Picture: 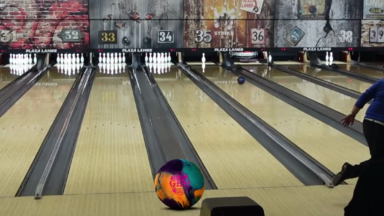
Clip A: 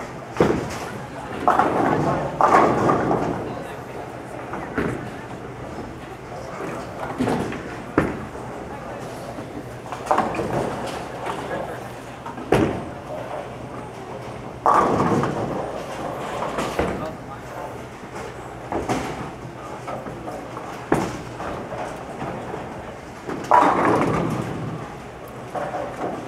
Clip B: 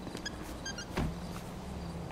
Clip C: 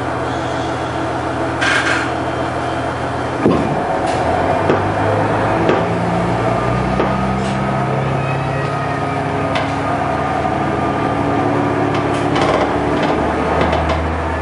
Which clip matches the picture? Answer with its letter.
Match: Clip A